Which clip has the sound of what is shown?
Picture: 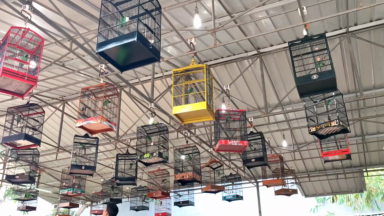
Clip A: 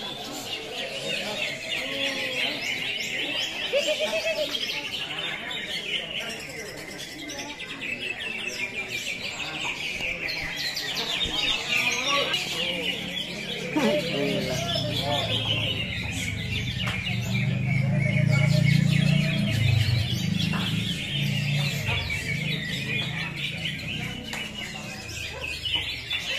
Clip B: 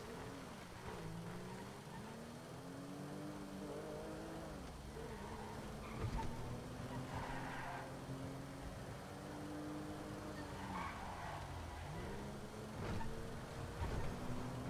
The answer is A